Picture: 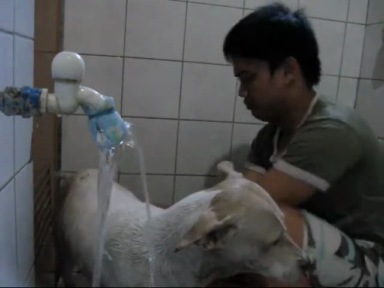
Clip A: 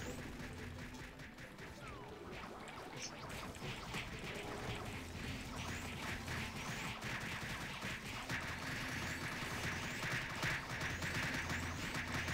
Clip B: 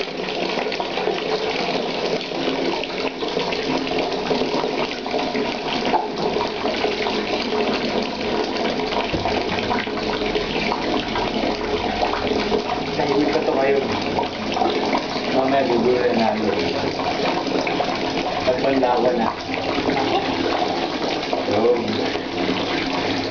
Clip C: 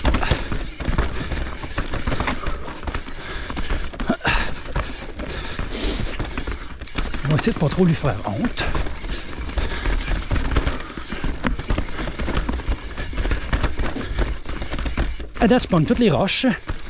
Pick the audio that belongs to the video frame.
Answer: B